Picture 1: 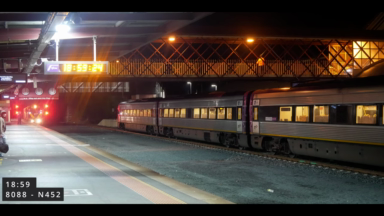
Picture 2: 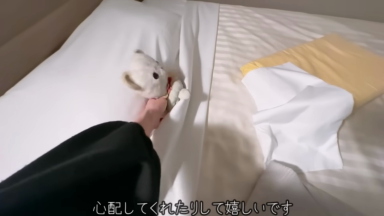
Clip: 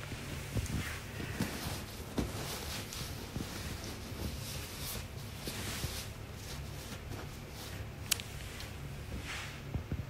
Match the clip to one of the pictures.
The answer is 2